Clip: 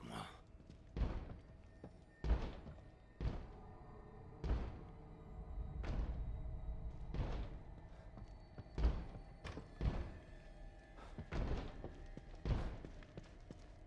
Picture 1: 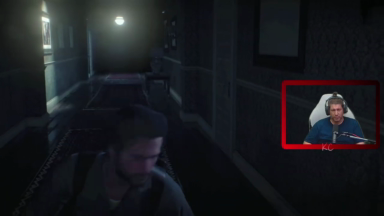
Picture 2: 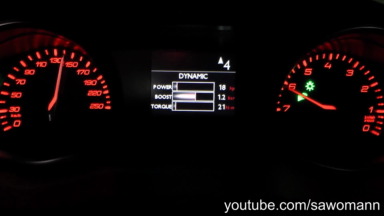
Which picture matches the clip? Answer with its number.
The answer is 1